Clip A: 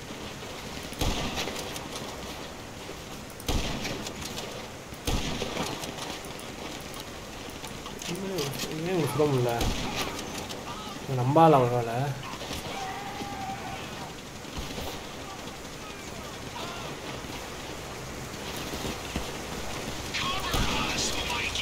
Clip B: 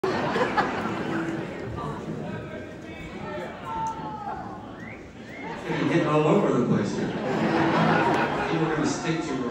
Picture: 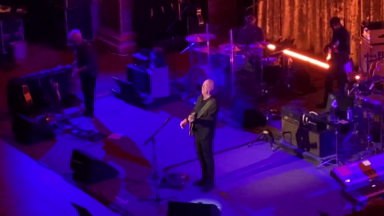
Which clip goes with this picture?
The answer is B